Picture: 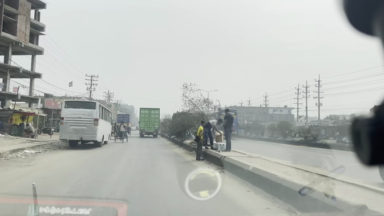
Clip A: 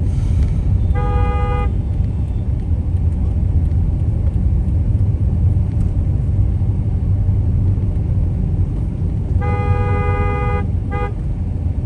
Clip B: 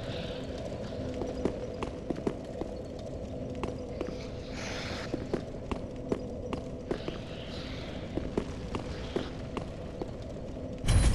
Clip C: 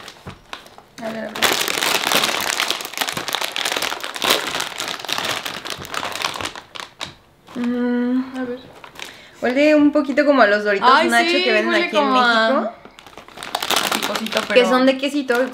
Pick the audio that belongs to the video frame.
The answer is A